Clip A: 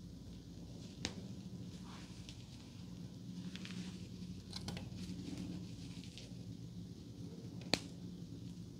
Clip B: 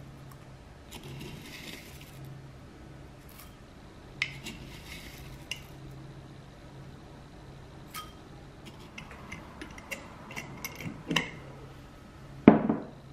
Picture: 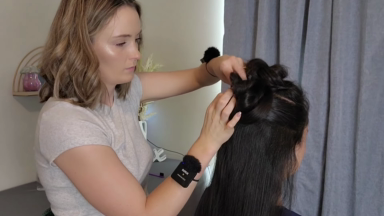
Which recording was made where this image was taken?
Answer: A